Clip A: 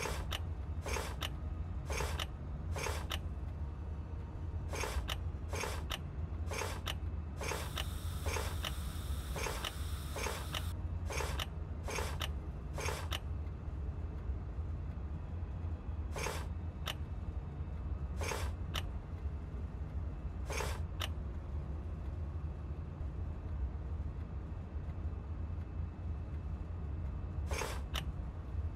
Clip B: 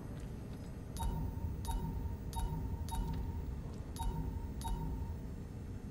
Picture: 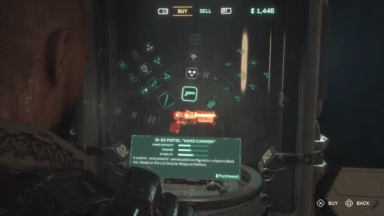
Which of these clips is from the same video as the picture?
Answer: B